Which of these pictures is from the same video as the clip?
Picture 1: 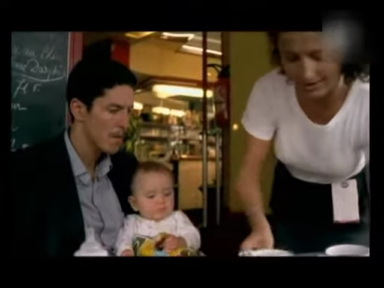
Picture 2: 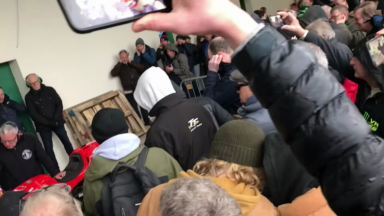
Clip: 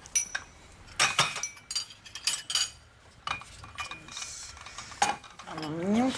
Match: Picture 1